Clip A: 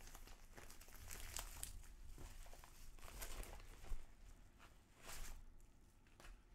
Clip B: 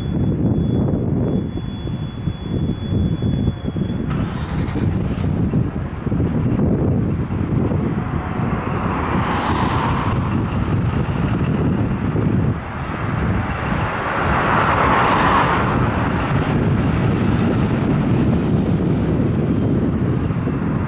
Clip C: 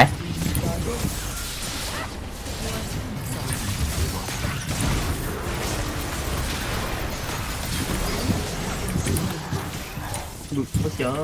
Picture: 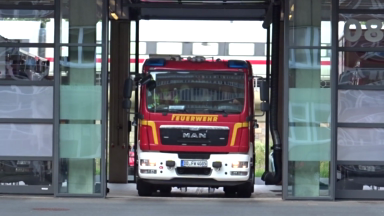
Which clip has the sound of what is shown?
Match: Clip B